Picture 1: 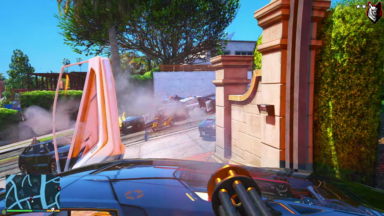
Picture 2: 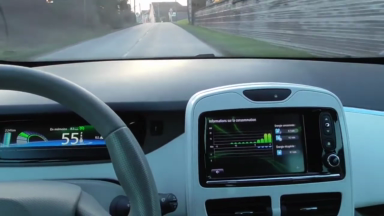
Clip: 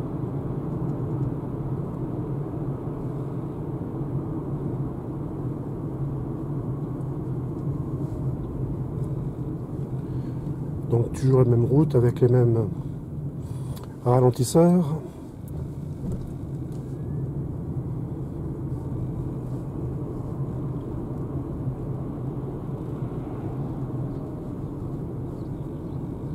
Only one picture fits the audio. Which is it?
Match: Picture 2